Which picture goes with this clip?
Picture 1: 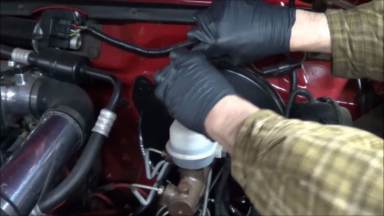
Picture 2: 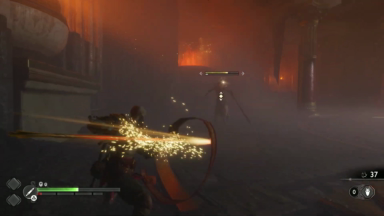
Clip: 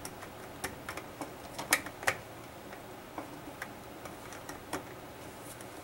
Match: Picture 1